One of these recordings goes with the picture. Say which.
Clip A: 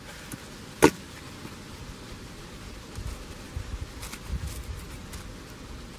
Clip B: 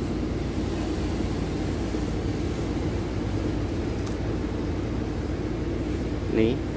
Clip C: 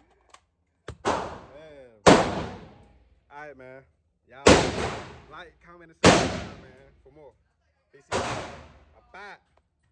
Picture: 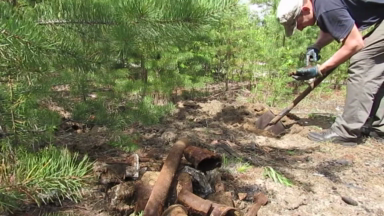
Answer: A